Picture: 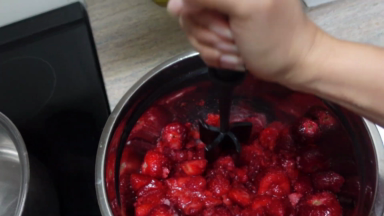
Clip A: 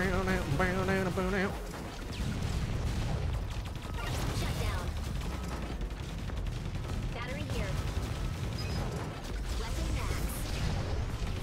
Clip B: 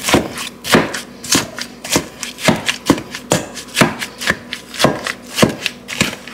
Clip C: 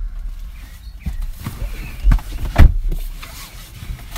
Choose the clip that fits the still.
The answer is B